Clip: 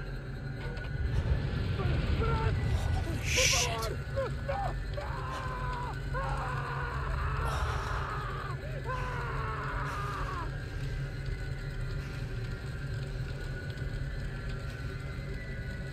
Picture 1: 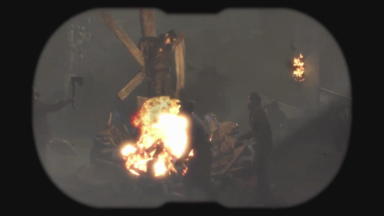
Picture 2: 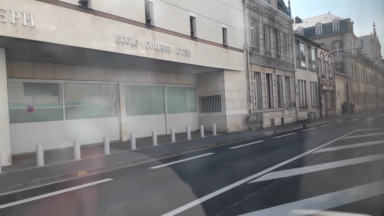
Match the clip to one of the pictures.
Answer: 1